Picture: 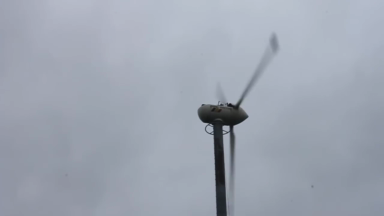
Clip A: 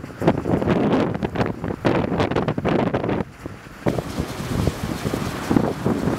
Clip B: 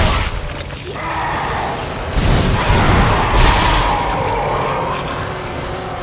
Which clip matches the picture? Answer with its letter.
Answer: A